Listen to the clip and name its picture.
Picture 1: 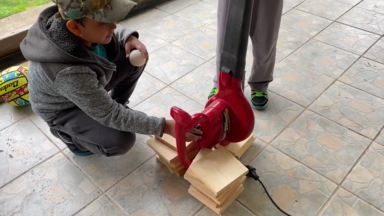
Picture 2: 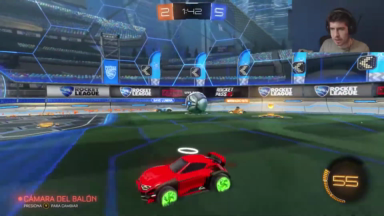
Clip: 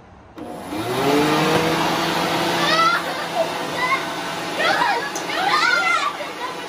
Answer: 1